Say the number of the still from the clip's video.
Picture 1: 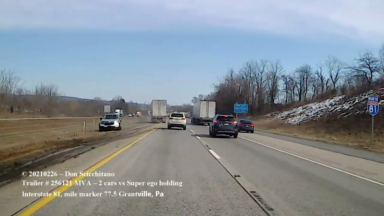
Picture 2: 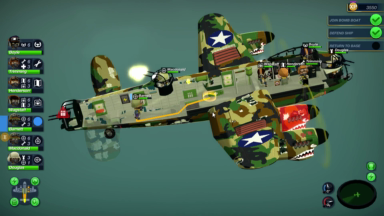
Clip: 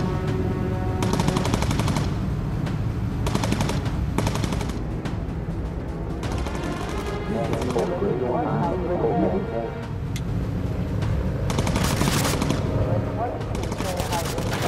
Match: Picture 2